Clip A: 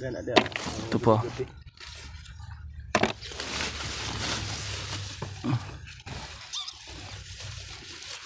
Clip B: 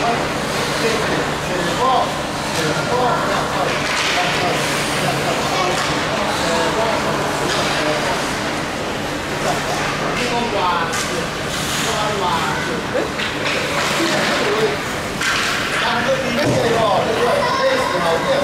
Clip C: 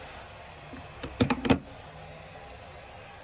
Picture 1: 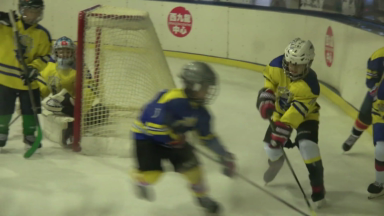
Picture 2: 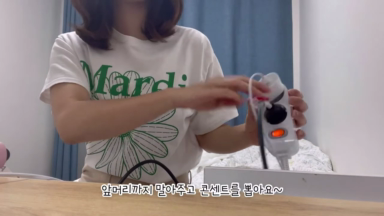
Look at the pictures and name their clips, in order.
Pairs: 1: B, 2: C